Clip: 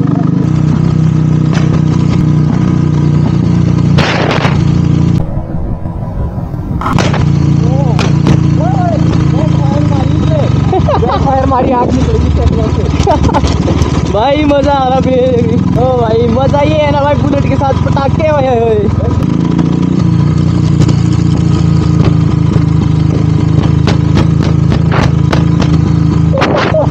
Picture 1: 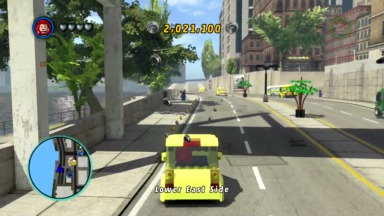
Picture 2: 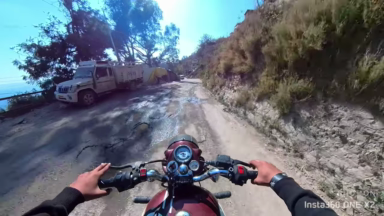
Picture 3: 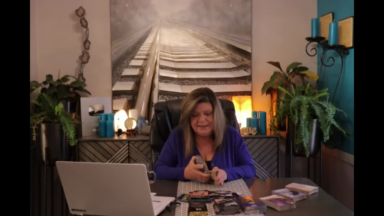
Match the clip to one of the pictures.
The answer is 2